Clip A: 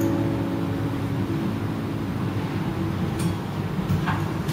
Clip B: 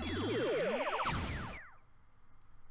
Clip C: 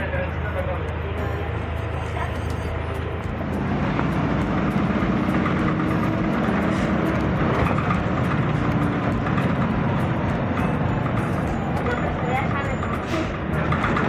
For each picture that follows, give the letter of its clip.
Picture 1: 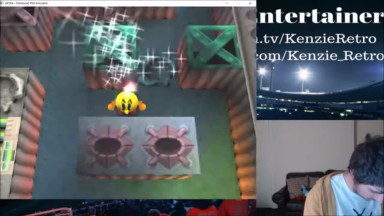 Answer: B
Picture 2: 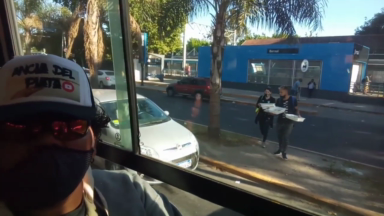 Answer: C